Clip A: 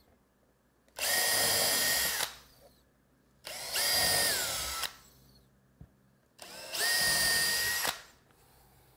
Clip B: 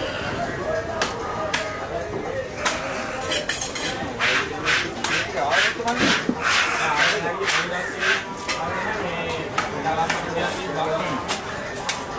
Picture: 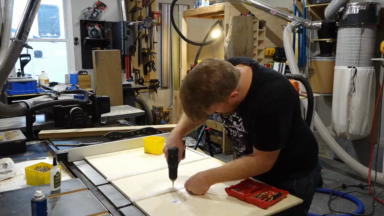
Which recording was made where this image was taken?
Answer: A